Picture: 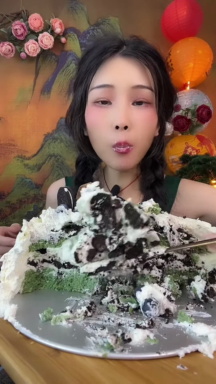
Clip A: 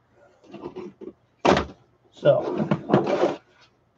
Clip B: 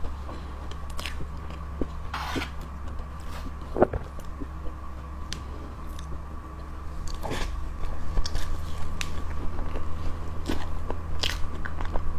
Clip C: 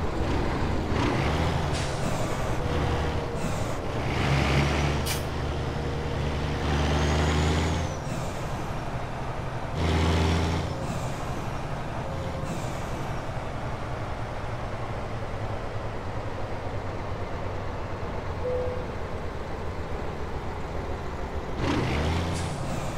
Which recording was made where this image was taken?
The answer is B